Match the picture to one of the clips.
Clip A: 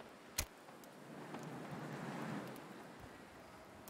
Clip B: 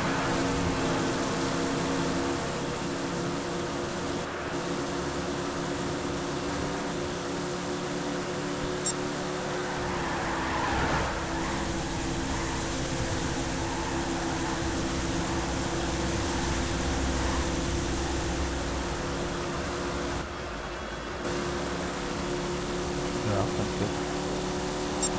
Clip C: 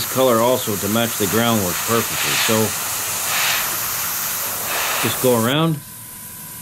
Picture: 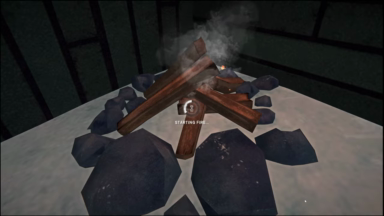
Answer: A